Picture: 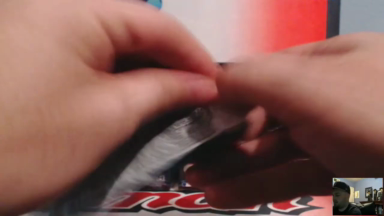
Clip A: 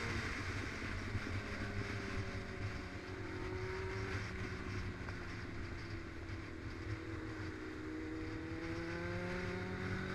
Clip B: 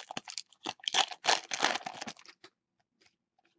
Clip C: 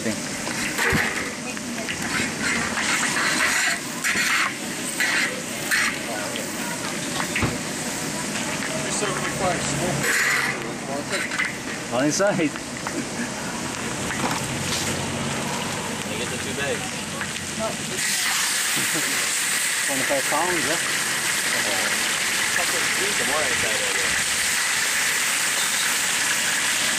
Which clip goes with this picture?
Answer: B